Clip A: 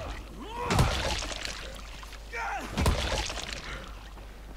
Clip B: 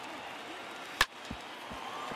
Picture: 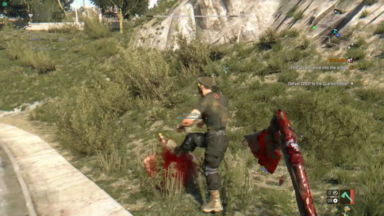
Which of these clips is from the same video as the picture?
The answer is A